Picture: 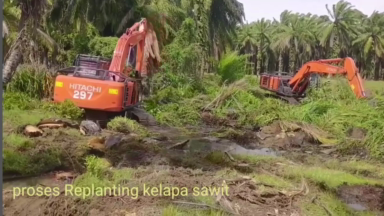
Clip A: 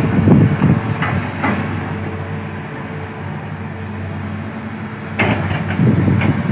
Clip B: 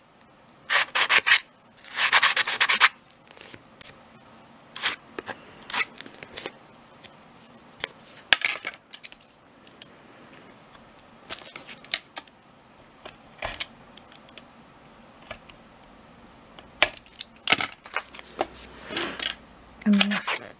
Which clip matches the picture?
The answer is A